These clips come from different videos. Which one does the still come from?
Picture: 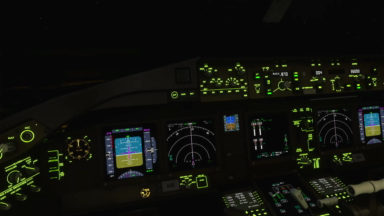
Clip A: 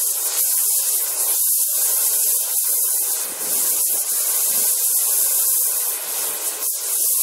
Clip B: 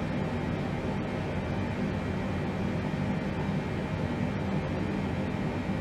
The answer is B